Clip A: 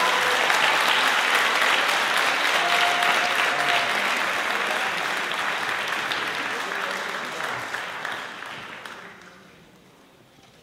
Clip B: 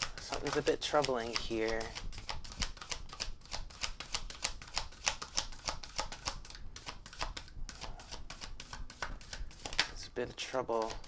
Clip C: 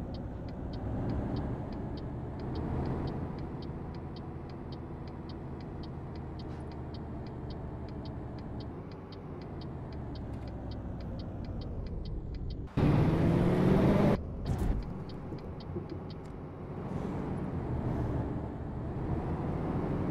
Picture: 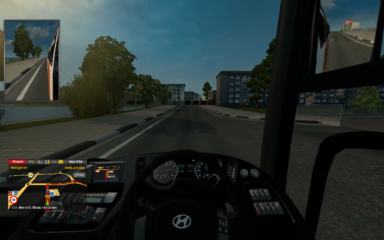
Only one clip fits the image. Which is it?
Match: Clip C